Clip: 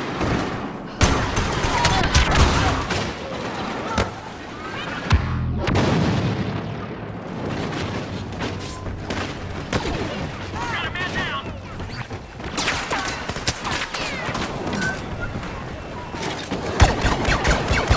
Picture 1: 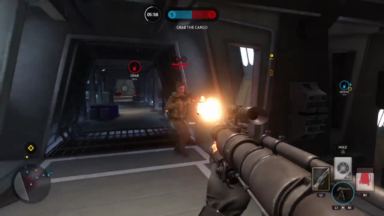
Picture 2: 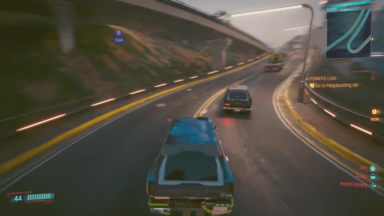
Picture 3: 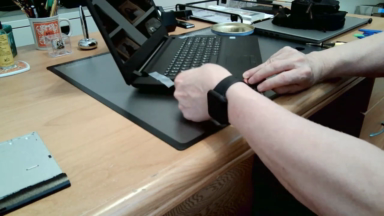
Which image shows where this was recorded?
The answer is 1